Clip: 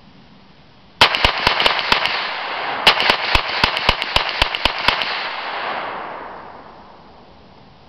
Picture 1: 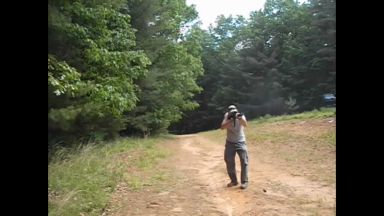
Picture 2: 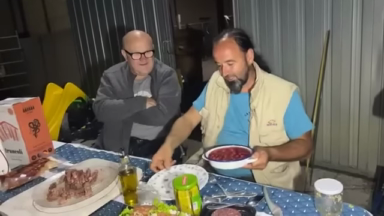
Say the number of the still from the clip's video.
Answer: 1